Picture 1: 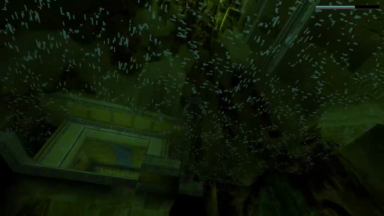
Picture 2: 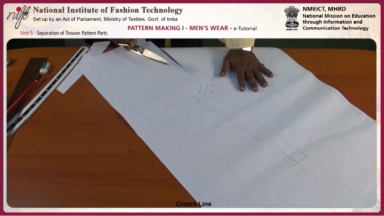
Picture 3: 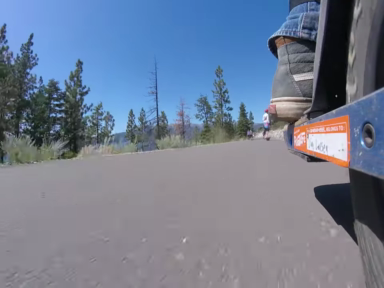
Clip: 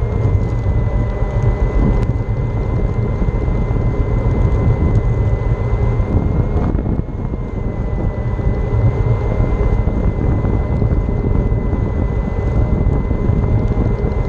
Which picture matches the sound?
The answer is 3